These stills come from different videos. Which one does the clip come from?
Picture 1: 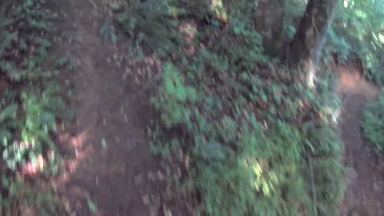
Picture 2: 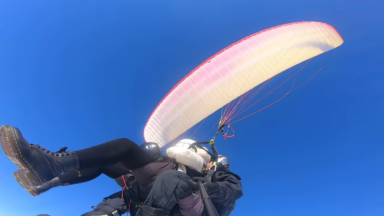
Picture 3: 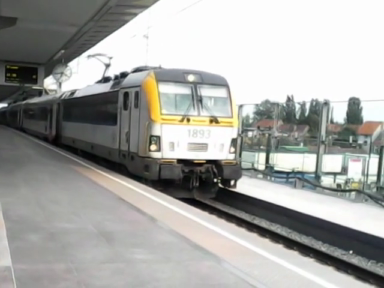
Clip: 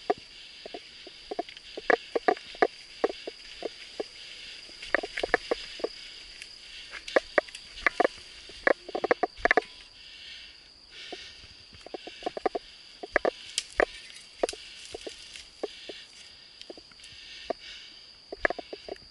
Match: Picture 1